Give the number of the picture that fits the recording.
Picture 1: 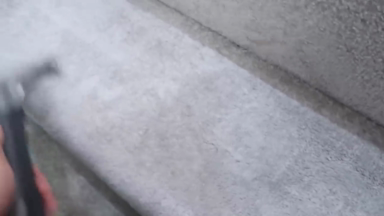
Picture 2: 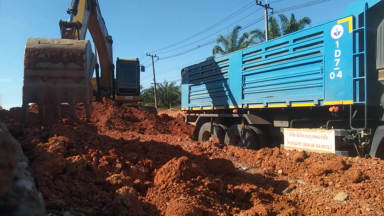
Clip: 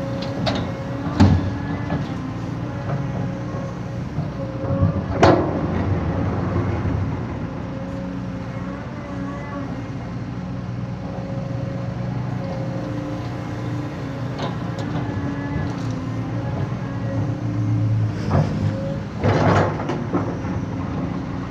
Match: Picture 2